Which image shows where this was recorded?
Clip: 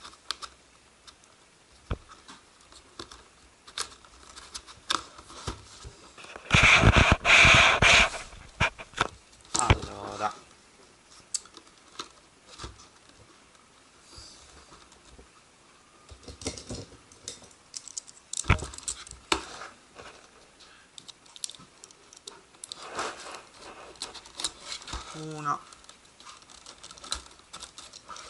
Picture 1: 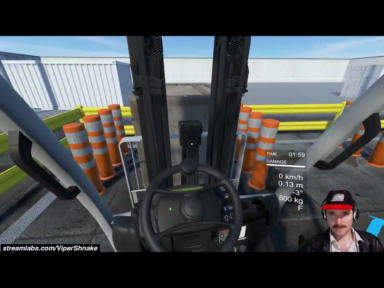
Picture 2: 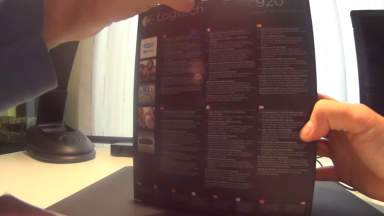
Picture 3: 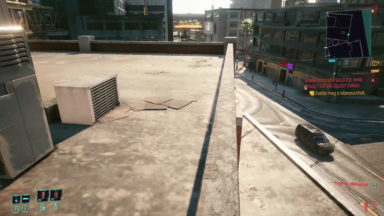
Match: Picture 2